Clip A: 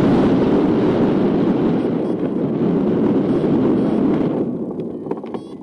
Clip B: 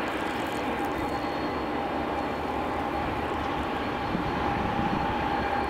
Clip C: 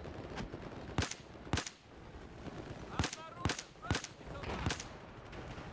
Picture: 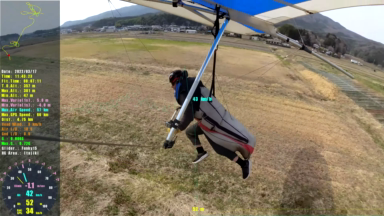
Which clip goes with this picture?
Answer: A